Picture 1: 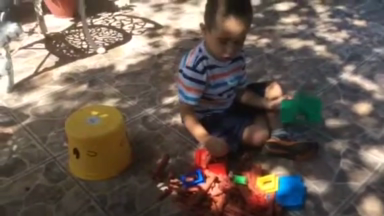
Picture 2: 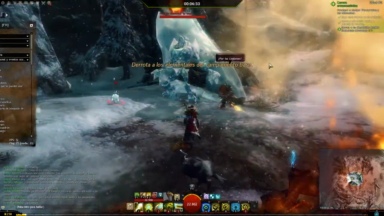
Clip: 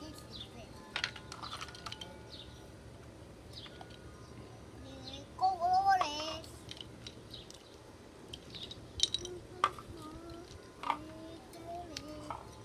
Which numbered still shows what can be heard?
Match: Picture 1